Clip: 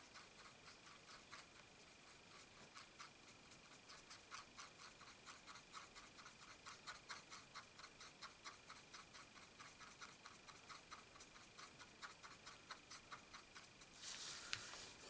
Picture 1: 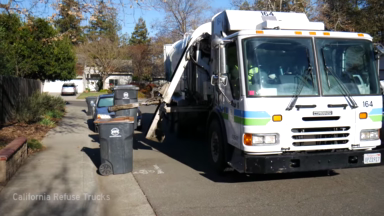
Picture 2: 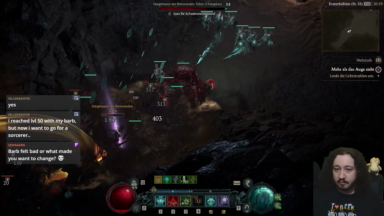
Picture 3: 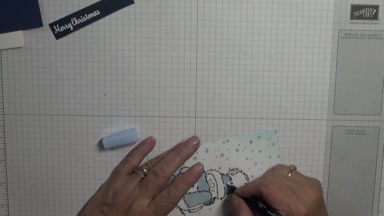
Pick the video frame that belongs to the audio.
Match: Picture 3